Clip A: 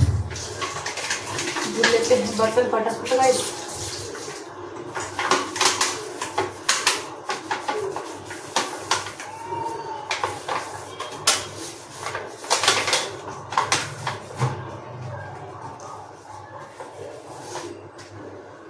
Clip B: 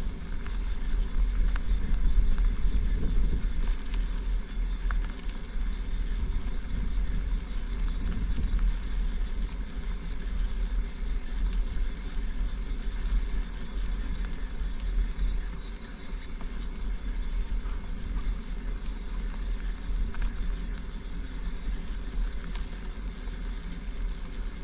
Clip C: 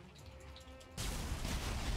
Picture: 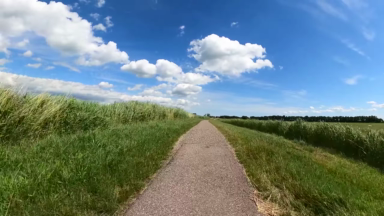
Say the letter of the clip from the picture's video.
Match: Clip B